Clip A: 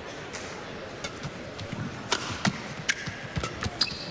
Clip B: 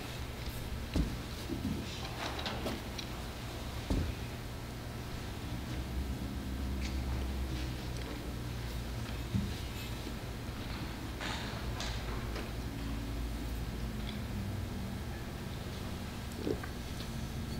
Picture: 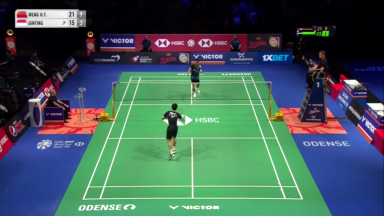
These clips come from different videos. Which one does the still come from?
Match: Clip A